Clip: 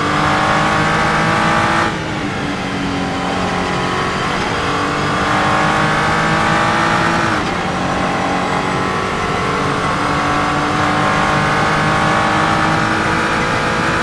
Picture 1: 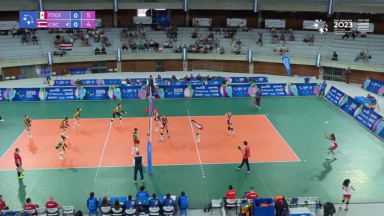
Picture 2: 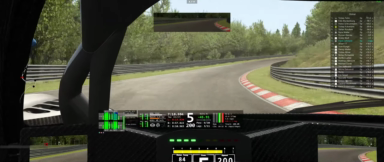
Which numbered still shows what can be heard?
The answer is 2